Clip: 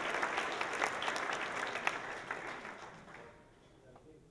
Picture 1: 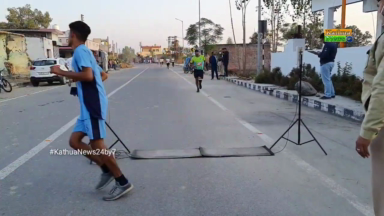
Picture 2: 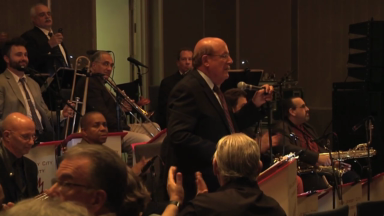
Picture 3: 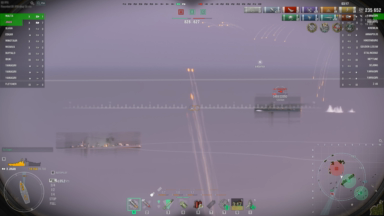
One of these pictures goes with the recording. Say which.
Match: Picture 2